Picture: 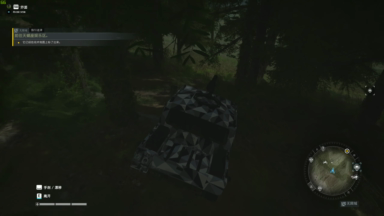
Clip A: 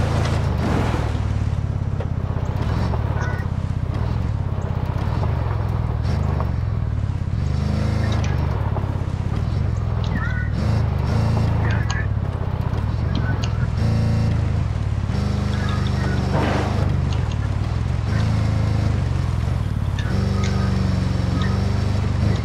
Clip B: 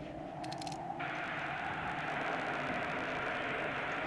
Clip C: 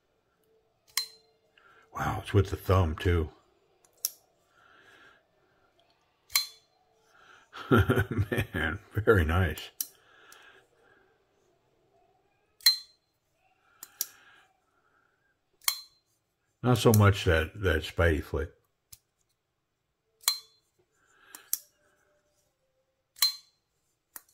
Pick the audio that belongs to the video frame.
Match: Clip A